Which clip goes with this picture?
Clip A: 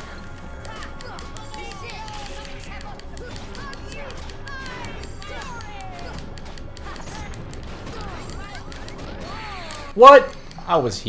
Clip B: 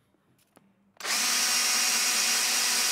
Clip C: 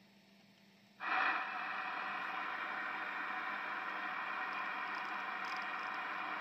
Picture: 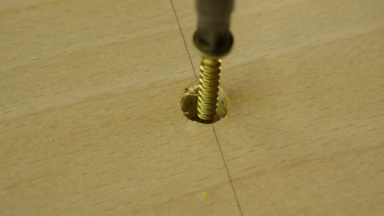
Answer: B